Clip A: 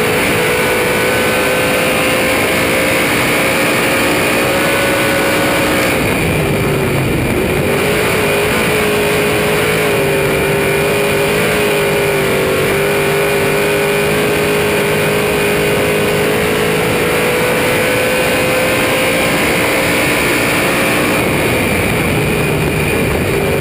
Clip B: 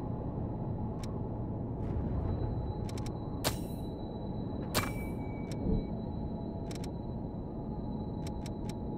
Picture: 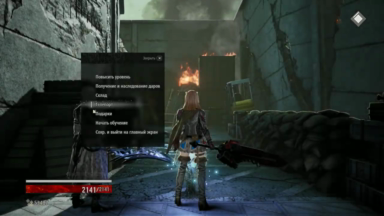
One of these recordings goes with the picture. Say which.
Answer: B